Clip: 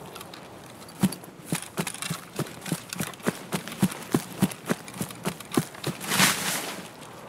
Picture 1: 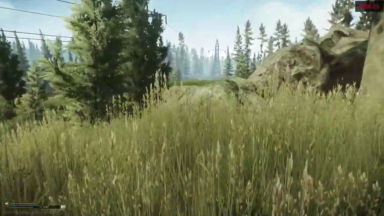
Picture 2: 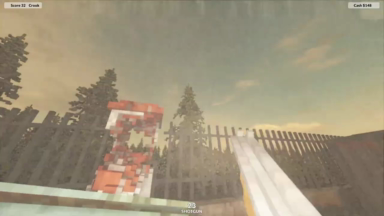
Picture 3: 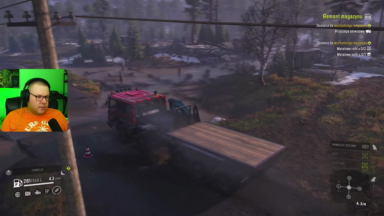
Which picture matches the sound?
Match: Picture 1